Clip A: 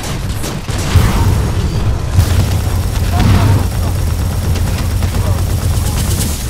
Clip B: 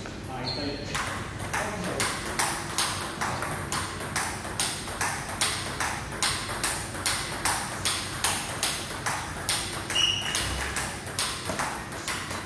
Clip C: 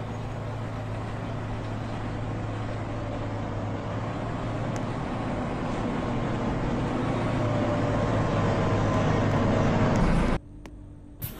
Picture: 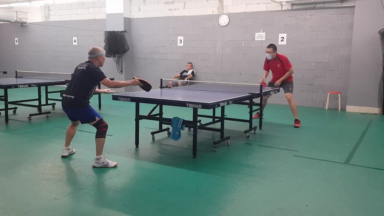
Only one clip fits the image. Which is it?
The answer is B